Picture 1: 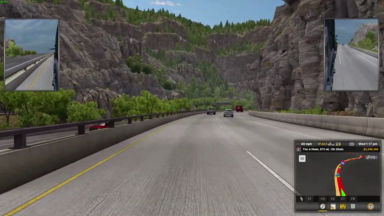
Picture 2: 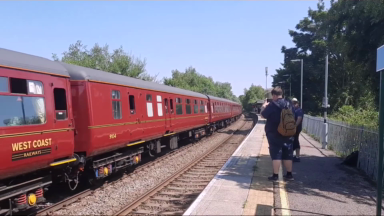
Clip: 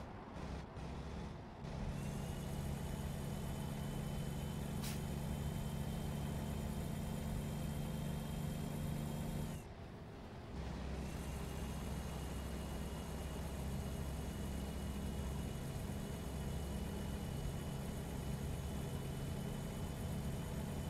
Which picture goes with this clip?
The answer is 1